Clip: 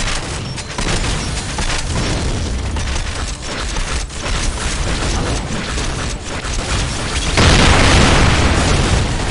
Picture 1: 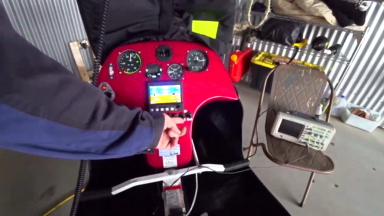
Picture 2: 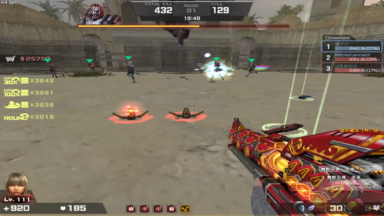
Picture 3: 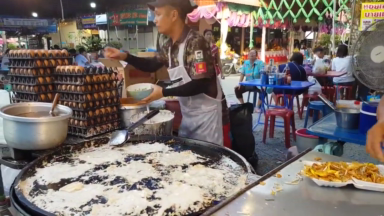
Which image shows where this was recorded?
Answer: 2